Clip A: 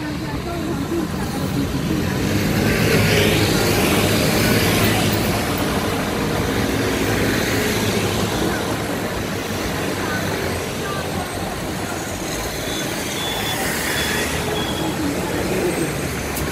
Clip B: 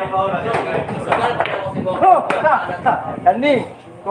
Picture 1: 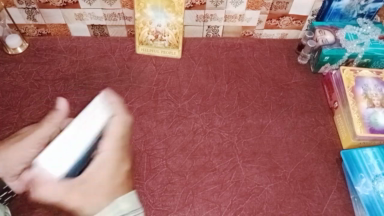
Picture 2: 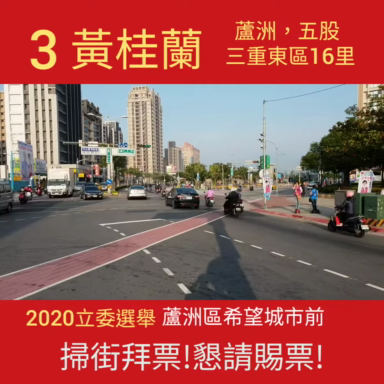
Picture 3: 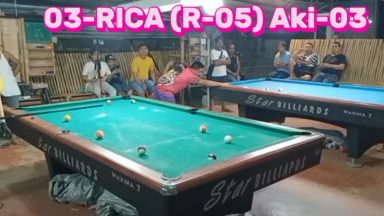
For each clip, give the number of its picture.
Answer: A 2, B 3